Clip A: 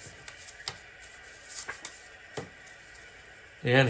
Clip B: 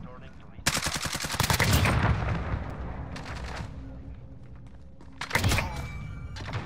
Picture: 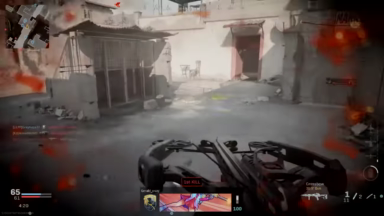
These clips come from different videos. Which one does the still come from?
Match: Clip B